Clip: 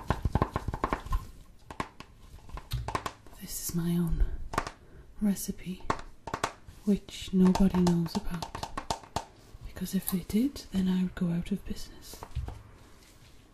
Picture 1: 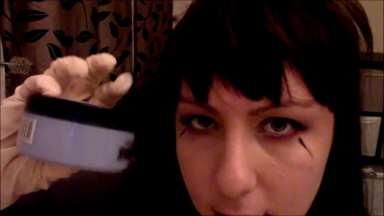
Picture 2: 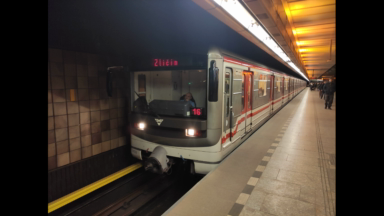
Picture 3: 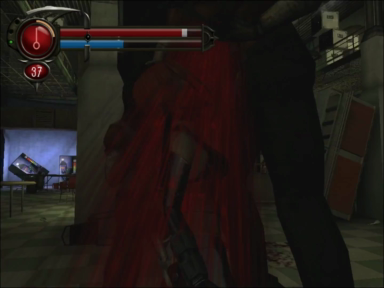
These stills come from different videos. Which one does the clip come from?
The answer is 1